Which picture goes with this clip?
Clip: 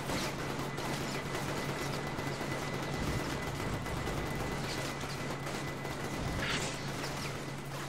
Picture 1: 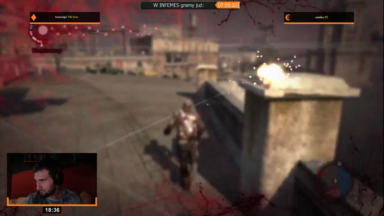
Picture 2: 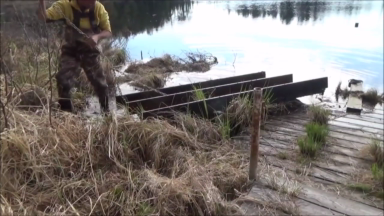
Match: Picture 1